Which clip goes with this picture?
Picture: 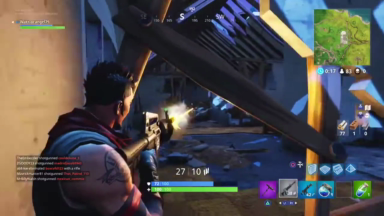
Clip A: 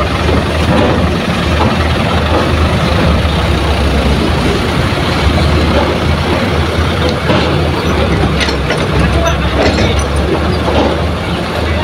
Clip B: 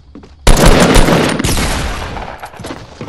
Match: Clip B